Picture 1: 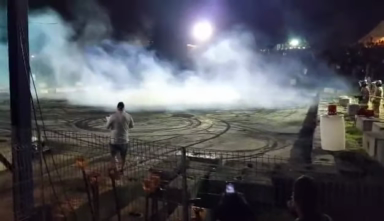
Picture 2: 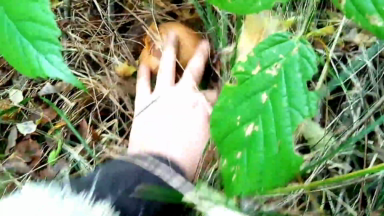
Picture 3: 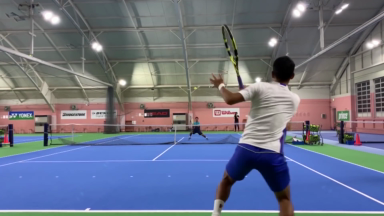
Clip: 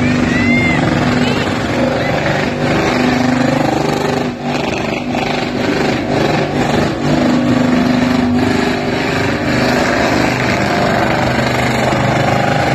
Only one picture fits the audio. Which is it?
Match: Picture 1